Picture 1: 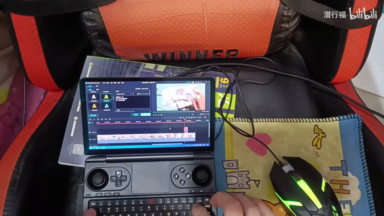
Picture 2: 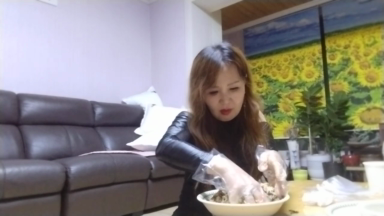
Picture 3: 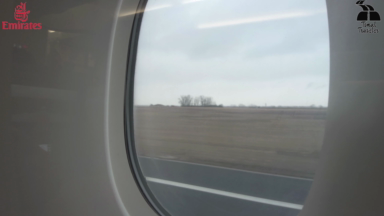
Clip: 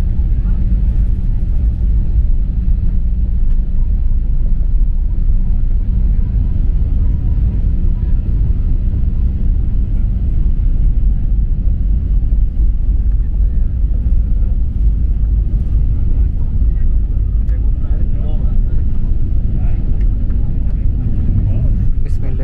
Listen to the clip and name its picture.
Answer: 3